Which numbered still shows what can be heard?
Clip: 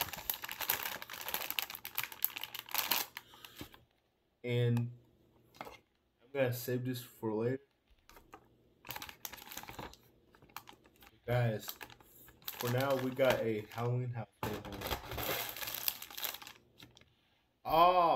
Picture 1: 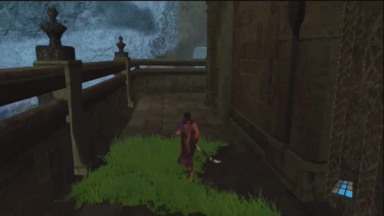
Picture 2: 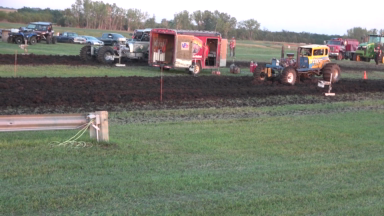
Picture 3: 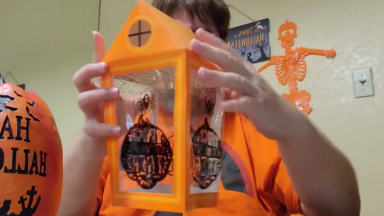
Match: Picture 3